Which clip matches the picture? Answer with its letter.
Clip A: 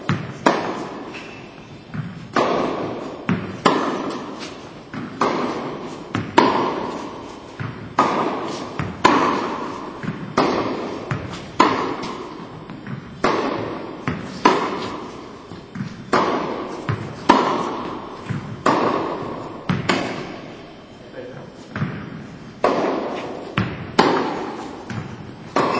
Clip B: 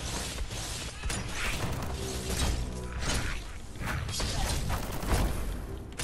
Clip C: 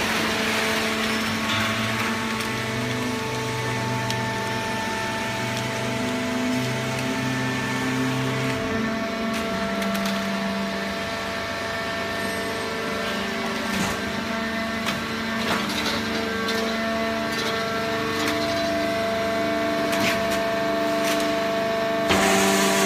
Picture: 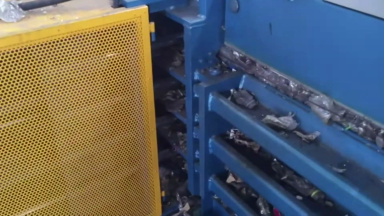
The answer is C